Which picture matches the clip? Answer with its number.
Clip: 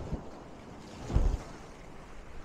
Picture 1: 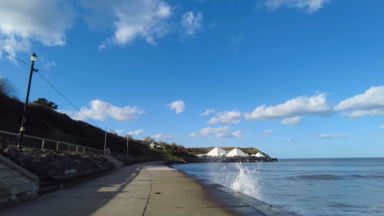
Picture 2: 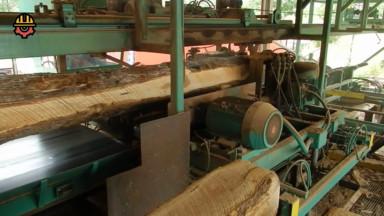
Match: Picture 1